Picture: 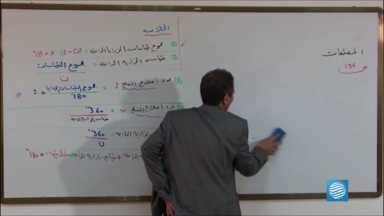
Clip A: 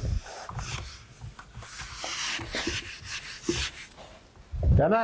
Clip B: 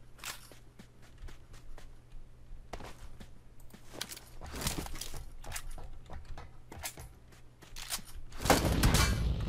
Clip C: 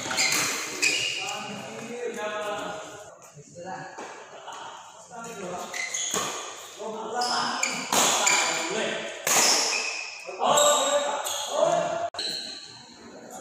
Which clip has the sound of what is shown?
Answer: A